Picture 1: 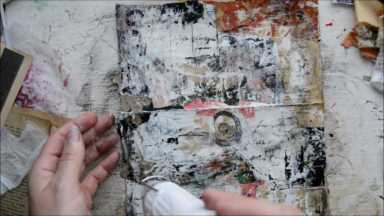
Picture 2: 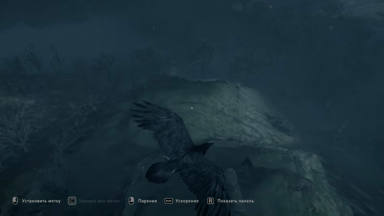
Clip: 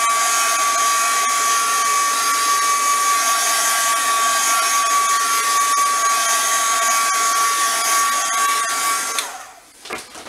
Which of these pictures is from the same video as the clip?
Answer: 1